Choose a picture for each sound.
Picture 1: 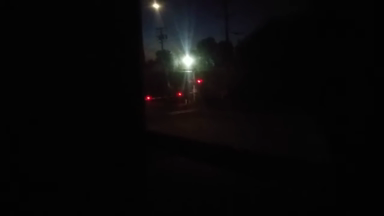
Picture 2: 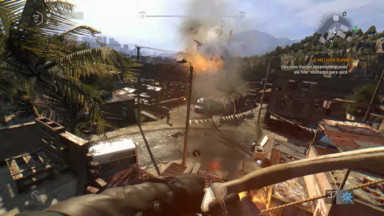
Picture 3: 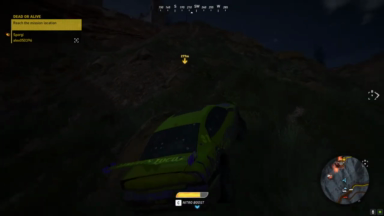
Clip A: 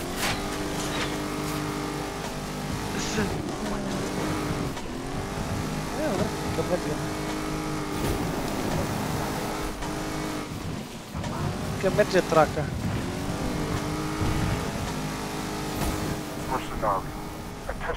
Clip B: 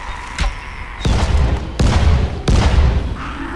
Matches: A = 3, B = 2